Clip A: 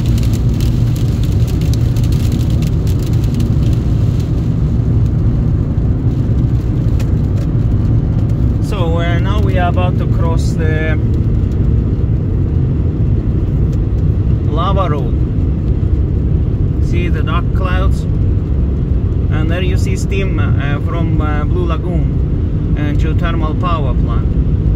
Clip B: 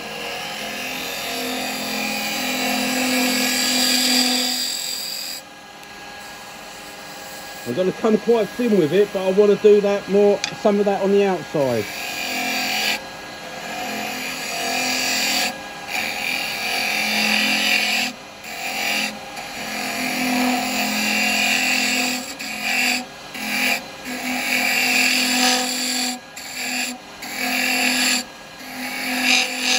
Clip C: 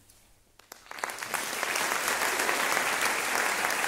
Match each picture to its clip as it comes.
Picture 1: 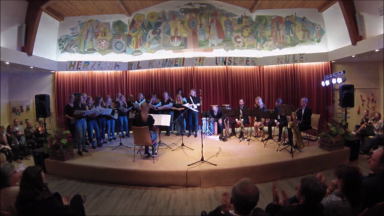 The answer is C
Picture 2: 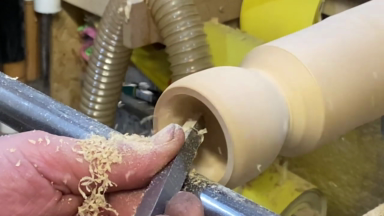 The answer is B